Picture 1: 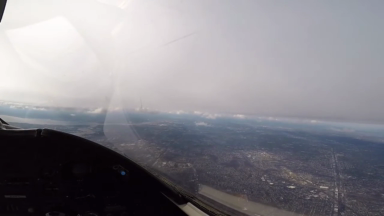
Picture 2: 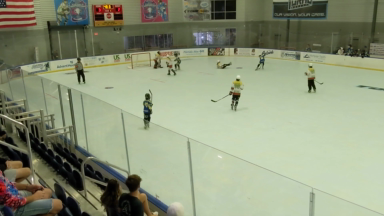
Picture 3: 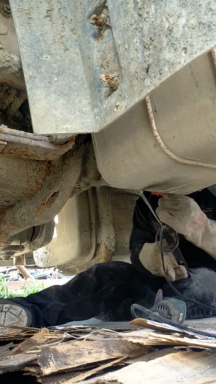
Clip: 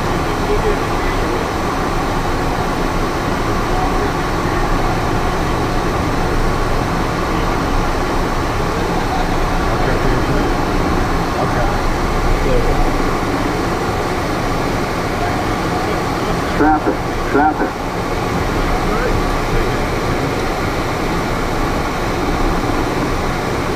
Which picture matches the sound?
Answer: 1